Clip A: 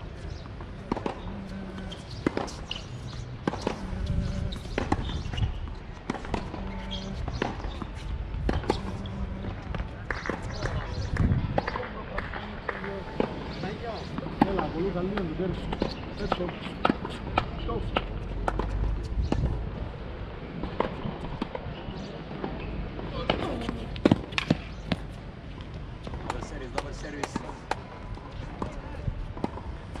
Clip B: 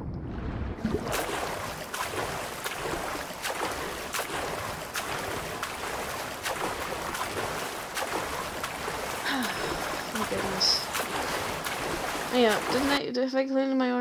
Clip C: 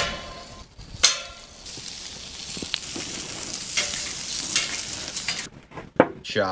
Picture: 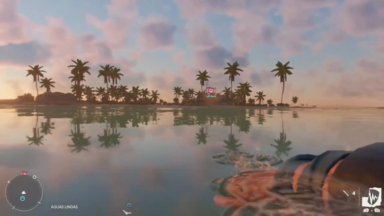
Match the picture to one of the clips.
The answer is B